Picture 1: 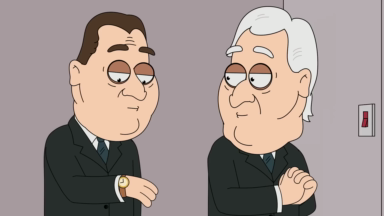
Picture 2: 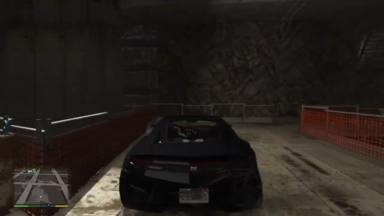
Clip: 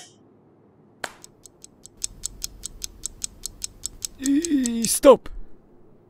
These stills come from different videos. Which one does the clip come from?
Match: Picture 1